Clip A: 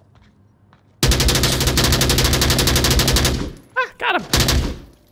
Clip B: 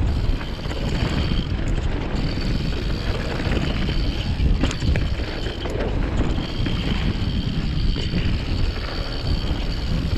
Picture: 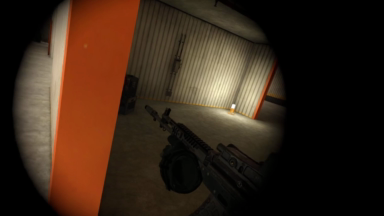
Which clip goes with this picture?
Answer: A